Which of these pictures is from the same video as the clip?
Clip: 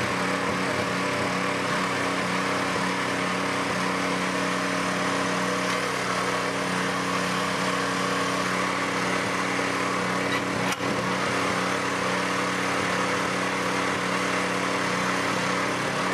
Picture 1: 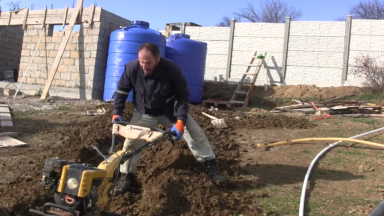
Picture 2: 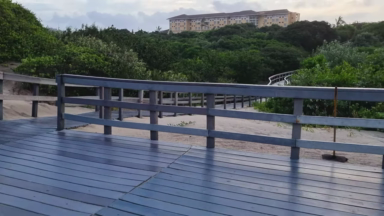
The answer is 1